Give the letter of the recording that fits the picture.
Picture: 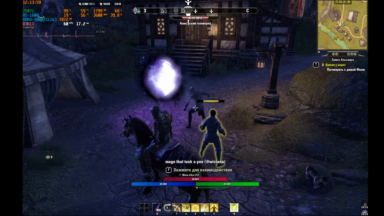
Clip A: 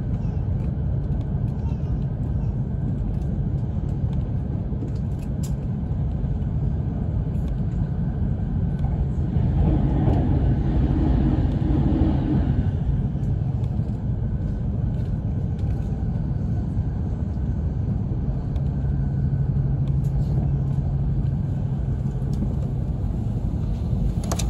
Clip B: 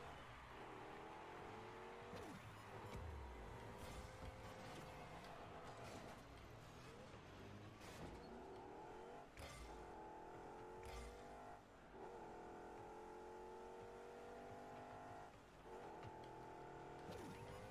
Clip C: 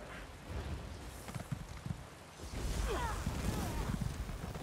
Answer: C